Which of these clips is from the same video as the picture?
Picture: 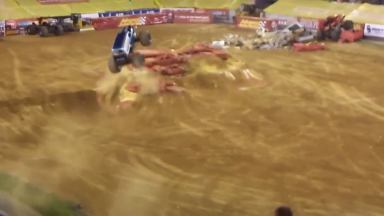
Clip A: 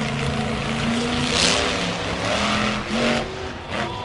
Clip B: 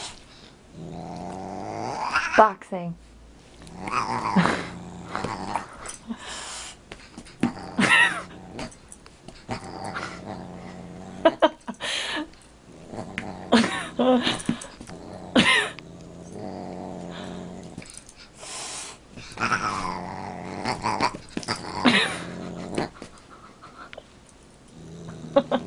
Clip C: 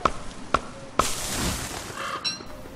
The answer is A